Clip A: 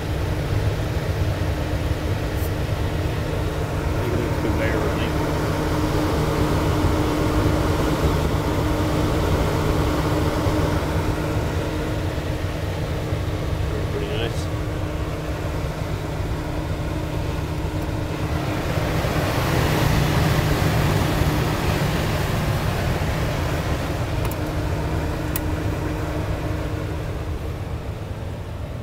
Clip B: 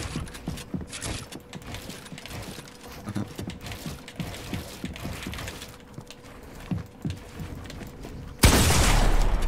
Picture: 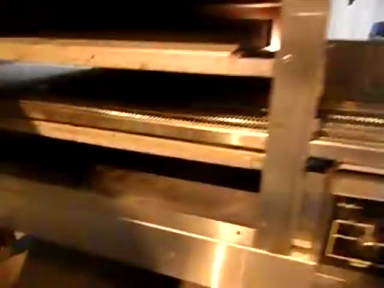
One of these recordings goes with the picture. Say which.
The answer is A